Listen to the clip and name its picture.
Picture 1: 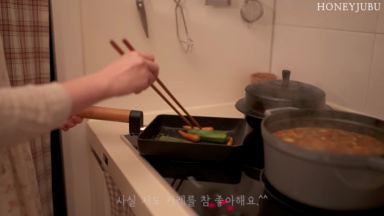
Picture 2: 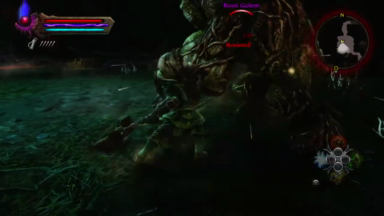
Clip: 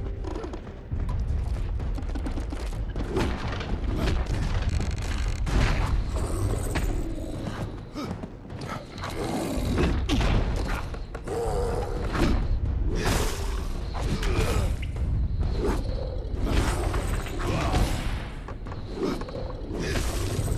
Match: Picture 2